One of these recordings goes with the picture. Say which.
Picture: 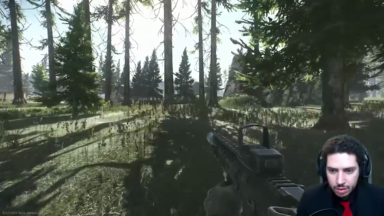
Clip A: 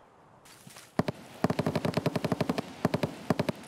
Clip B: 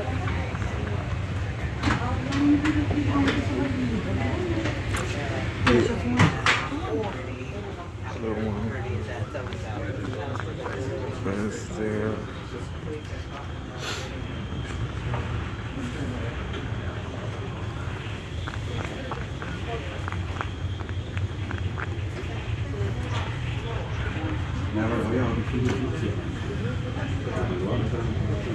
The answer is A